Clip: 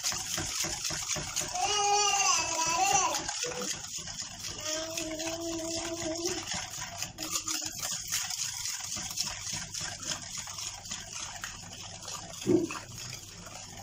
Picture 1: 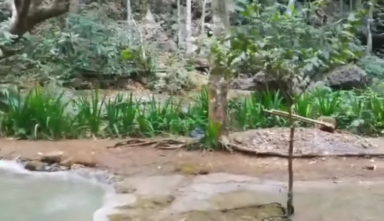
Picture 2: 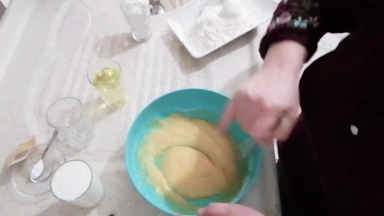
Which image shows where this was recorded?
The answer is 2